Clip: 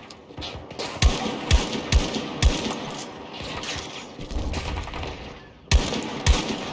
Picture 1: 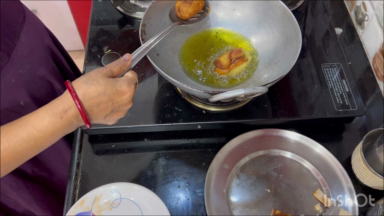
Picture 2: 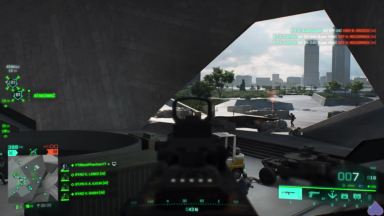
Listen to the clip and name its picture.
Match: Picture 2